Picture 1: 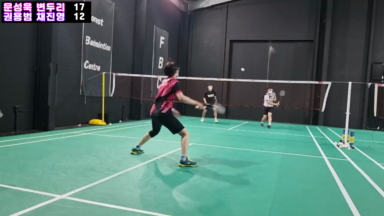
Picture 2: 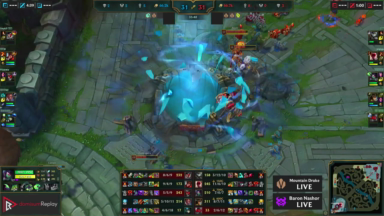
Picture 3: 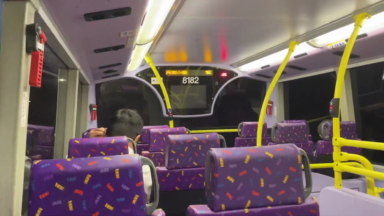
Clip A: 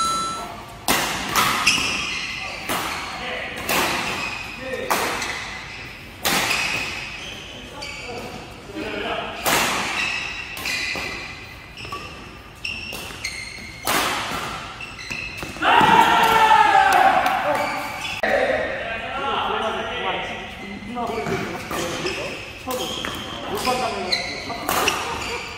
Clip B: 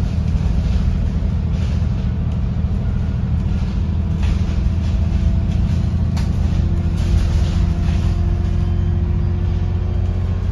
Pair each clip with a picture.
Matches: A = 1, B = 3